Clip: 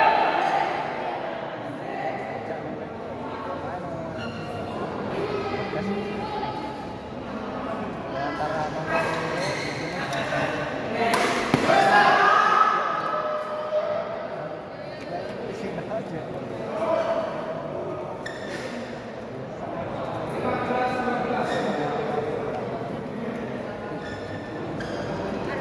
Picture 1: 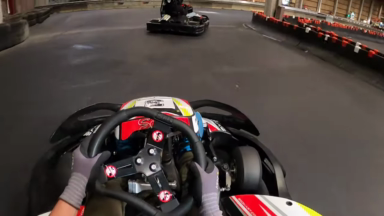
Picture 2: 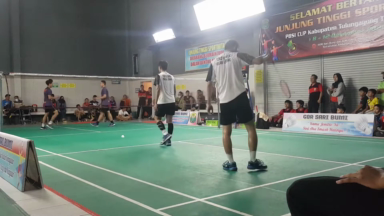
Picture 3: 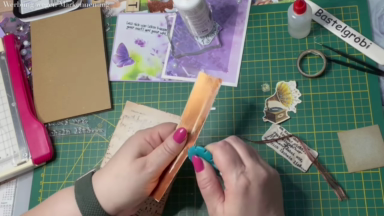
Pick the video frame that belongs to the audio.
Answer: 2